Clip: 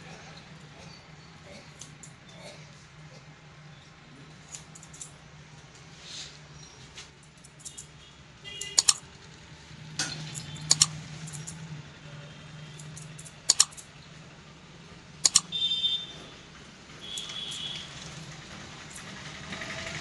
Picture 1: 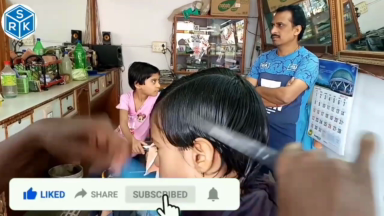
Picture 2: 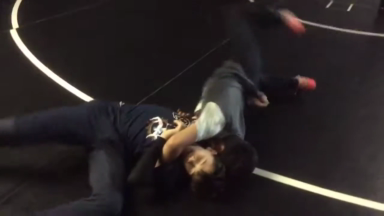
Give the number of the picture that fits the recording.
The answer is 1